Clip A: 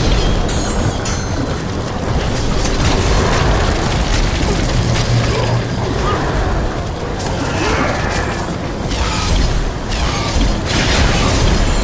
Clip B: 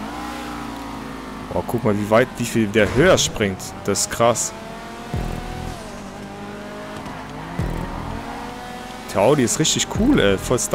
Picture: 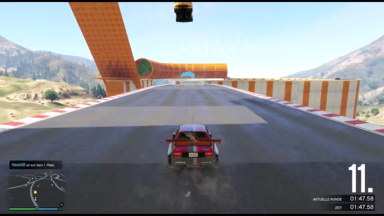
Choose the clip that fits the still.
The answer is B